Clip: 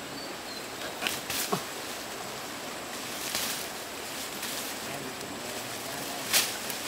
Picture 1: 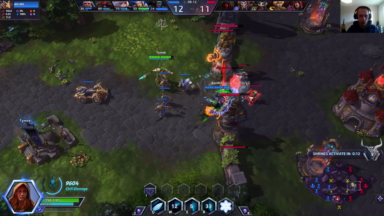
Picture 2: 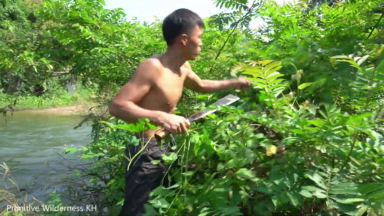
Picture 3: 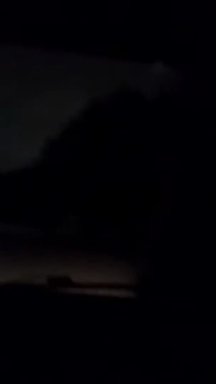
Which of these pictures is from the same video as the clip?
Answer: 2